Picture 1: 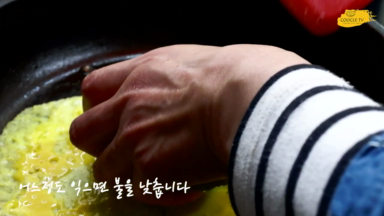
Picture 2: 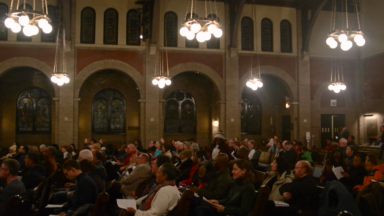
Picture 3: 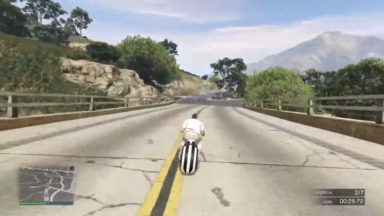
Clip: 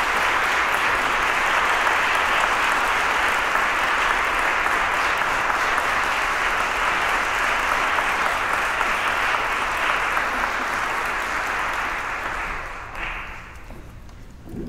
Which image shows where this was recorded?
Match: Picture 2